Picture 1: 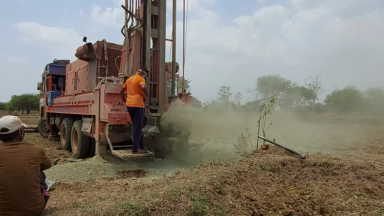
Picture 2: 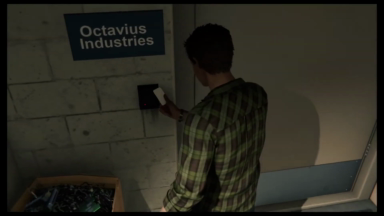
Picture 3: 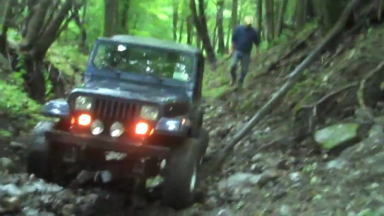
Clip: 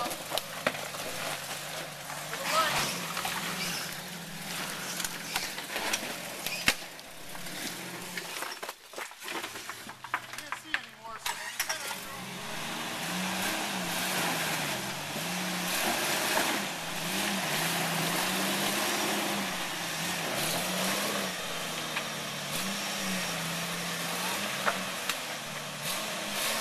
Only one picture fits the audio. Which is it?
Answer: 3